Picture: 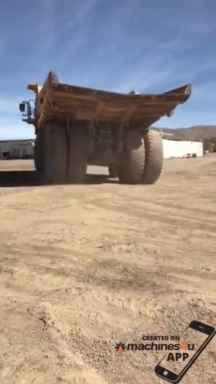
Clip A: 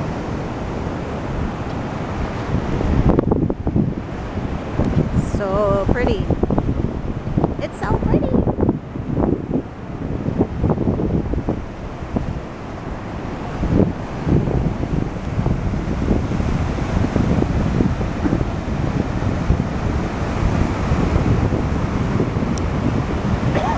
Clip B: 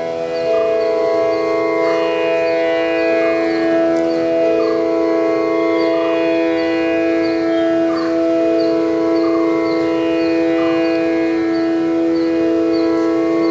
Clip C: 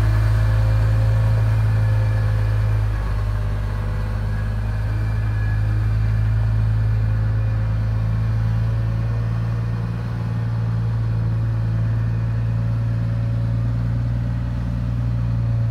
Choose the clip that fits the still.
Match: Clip C